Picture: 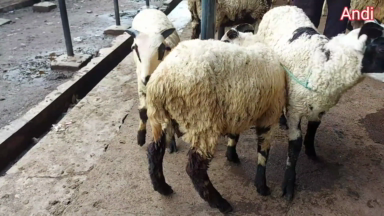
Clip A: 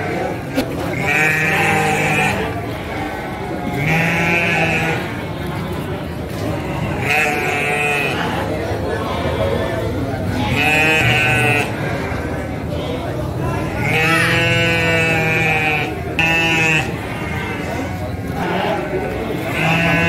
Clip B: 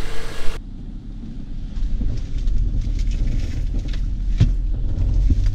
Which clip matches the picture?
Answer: A